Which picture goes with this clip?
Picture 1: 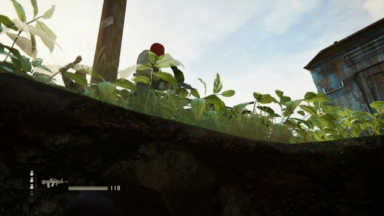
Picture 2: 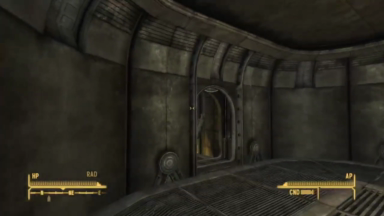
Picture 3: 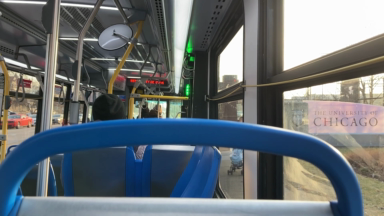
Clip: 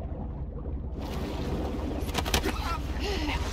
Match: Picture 1